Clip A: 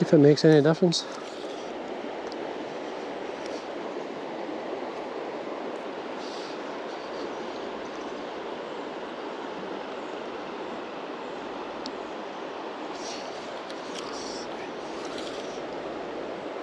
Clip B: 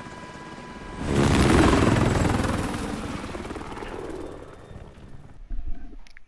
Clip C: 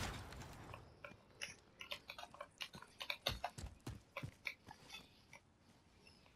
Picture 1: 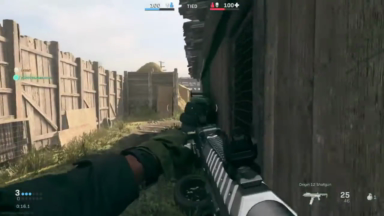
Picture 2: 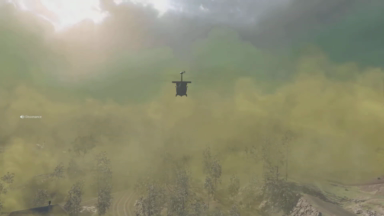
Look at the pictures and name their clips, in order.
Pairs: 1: C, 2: B